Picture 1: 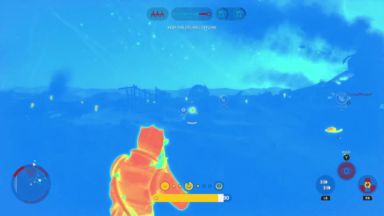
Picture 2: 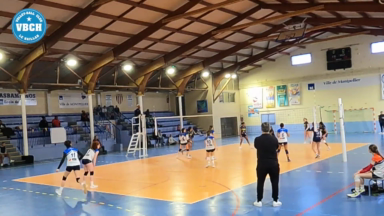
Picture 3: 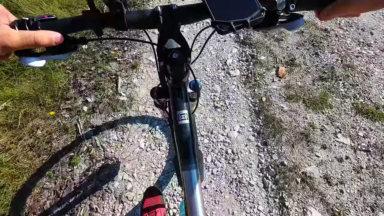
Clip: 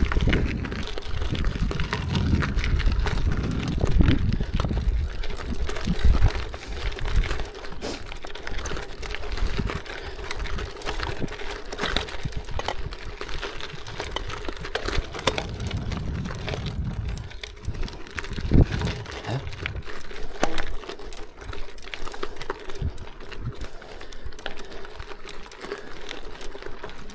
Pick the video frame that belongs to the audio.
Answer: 3